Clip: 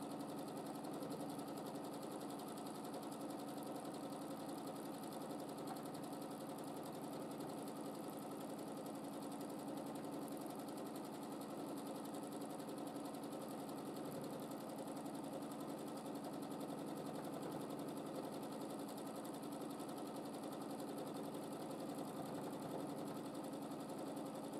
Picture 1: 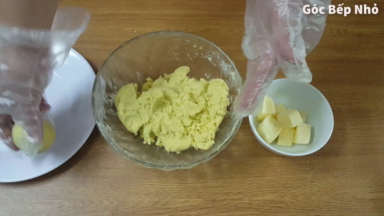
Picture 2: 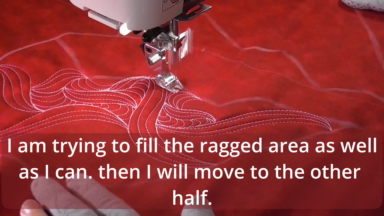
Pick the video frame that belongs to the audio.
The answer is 2